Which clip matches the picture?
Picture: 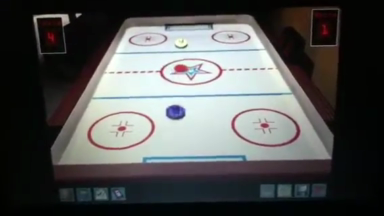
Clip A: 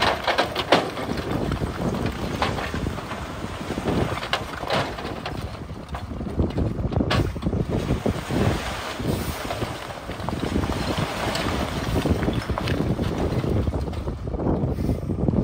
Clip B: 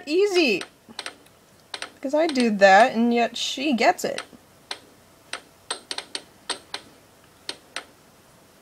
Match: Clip B